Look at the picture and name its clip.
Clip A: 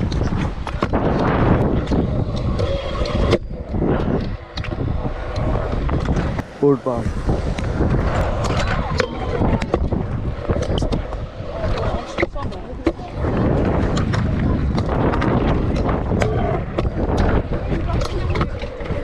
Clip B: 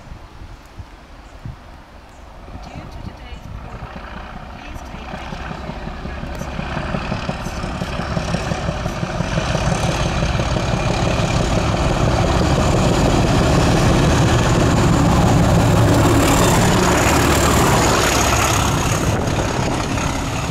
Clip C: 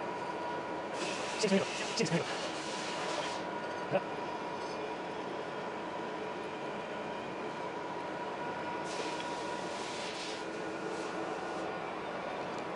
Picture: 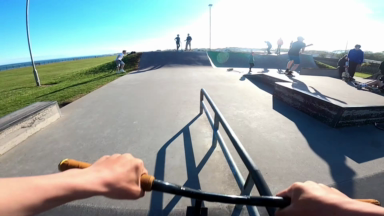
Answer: A